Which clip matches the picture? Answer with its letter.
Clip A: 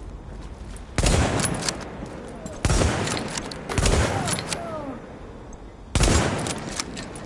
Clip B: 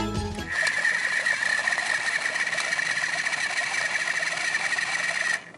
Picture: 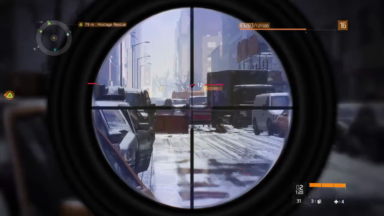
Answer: A